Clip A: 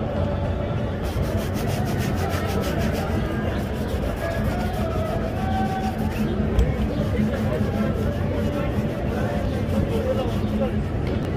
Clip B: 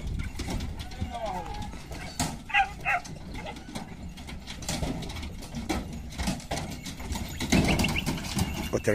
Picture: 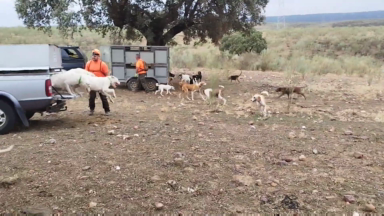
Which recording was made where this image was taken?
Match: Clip B